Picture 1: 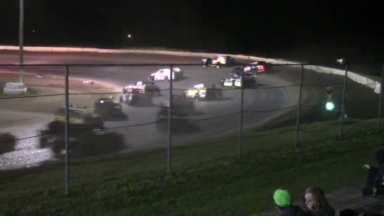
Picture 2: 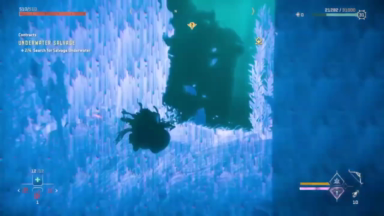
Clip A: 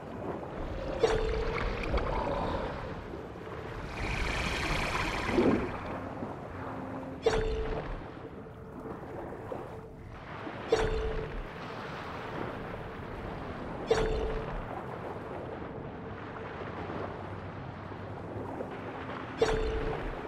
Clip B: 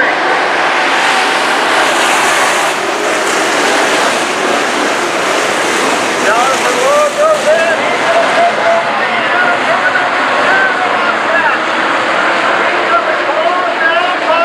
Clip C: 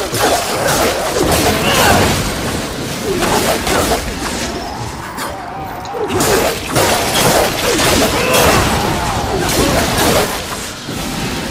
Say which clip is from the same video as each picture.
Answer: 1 B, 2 A